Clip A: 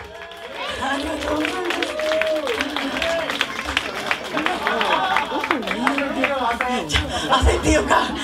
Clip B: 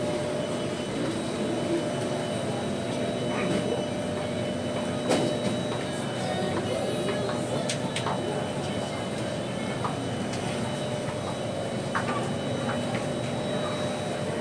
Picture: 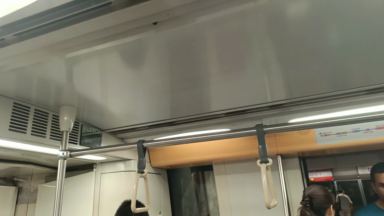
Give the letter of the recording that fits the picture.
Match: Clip B